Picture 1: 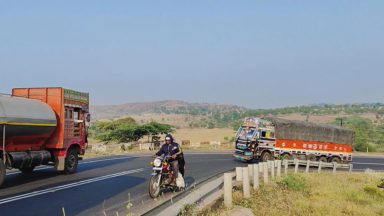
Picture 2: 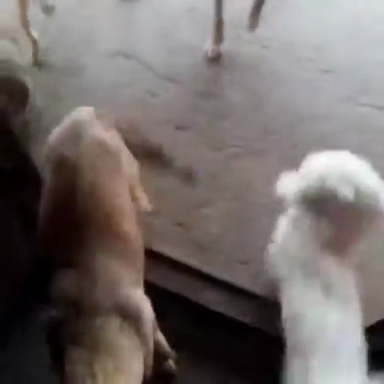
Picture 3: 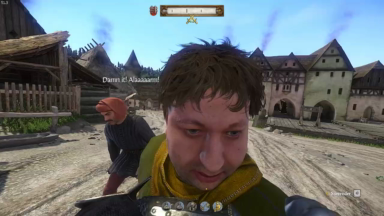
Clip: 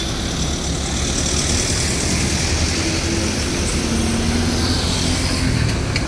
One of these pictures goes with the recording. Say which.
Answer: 1